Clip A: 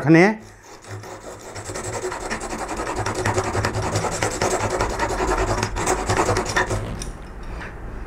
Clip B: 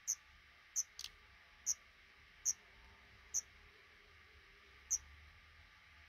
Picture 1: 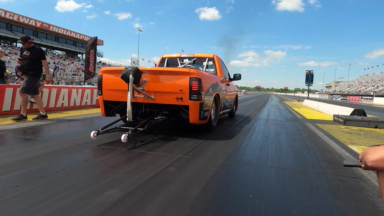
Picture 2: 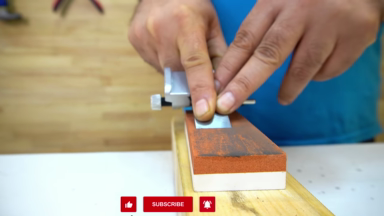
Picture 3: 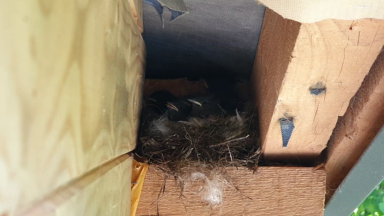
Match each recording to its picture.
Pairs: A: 2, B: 3